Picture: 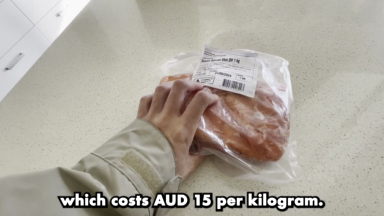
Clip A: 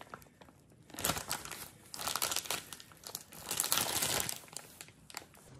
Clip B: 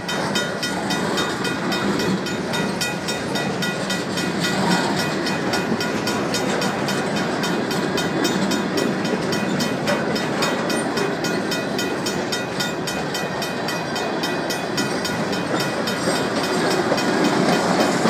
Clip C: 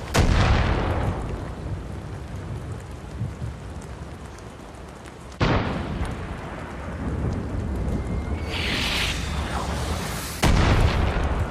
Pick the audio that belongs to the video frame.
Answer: A